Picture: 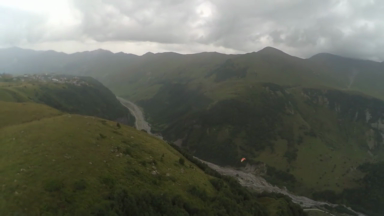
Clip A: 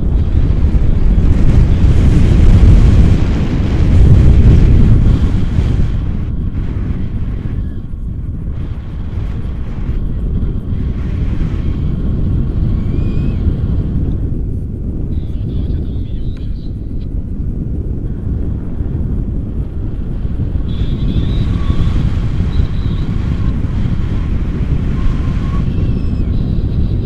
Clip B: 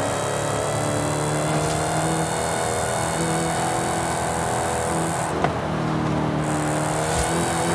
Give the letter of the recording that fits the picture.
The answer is A